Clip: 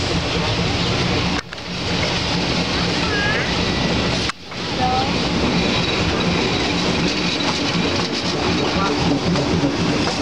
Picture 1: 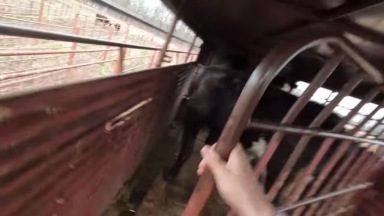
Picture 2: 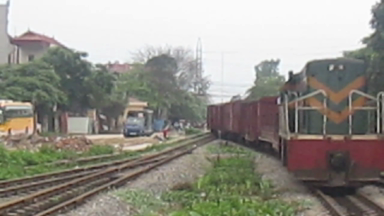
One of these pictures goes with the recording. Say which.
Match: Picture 2